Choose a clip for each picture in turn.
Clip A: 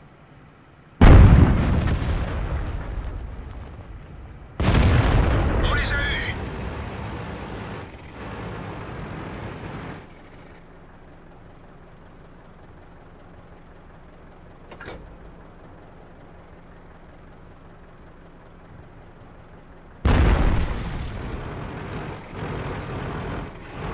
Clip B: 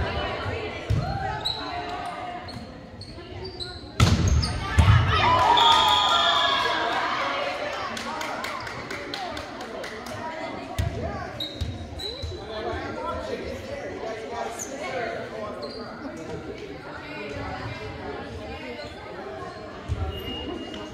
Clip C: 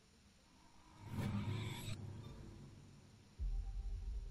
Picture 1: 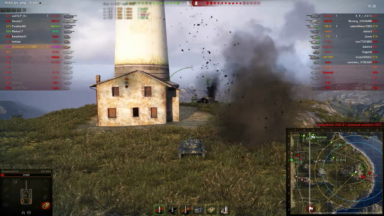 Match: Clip A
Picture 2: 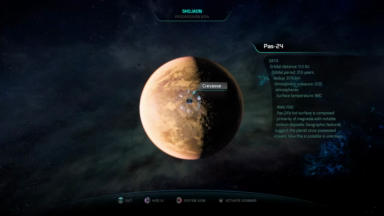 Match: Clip C